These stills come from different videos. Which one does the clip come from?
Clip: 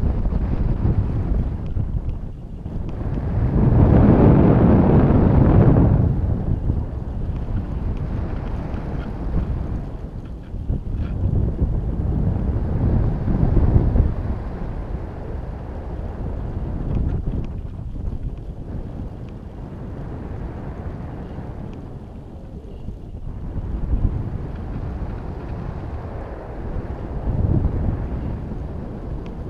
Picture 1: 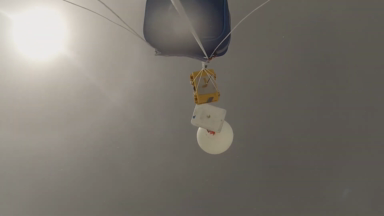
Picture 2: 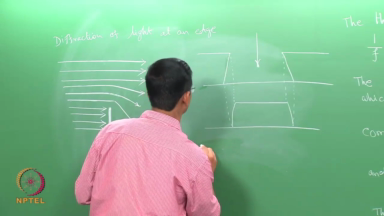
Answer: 1